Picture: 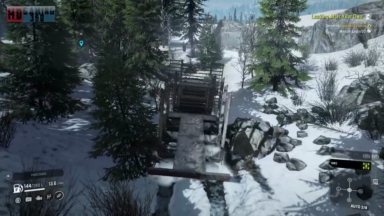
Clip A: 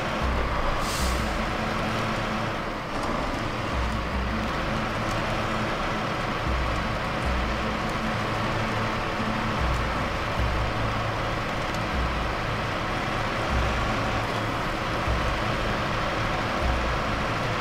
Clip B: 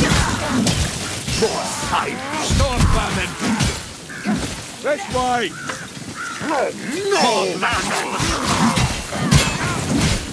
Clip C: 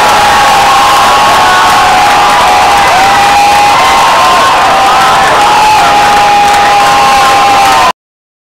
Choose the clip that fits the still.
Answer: A